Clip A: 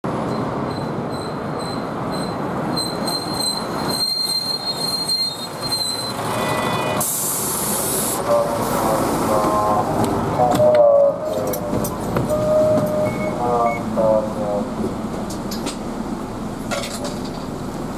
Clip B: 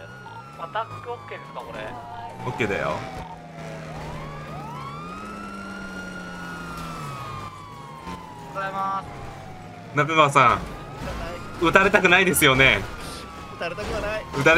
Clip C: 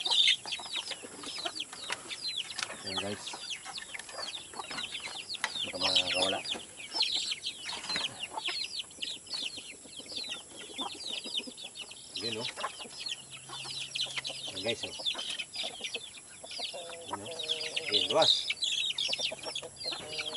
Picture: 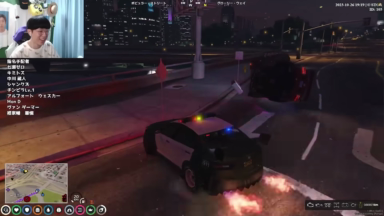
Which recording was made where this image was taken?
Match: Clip B